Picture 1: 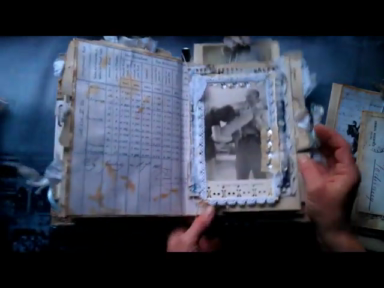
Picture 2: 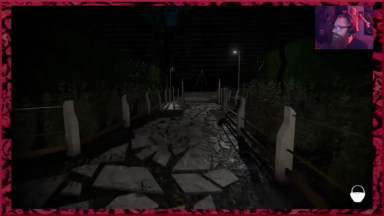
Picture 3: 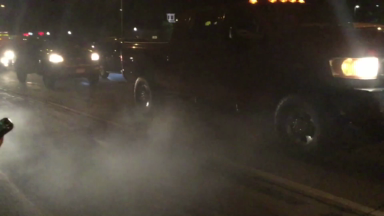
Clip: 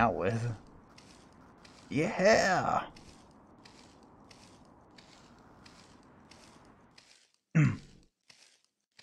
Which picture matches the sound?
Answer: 2